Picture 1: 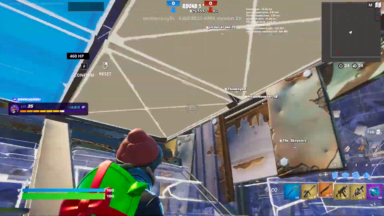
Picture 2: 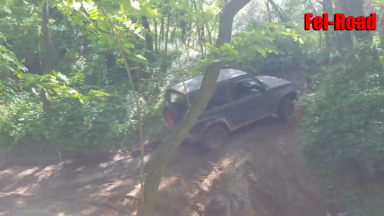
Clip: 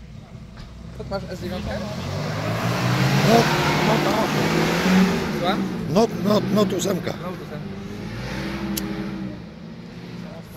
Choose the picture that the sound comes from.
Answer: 2